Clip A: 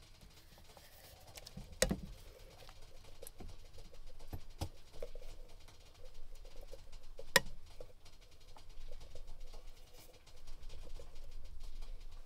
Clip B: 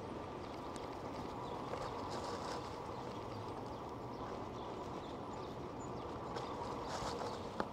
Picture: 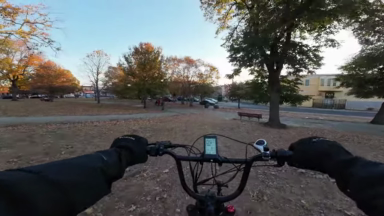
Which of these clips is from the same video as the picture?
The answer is B